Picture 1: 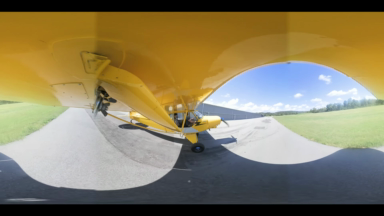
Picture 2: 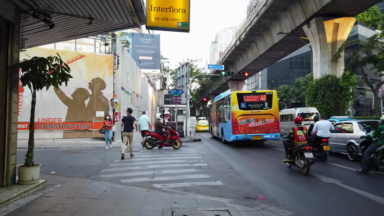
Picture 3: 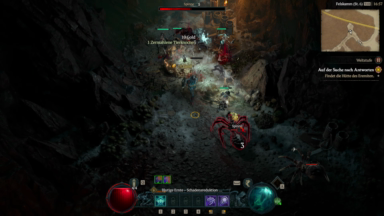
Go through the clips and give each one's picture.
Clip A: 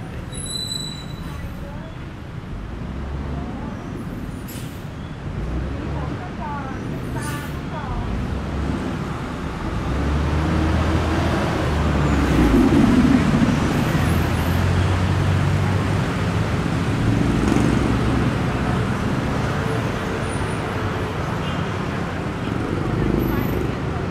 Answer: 2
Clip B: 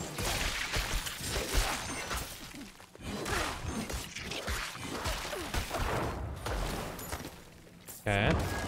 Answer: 3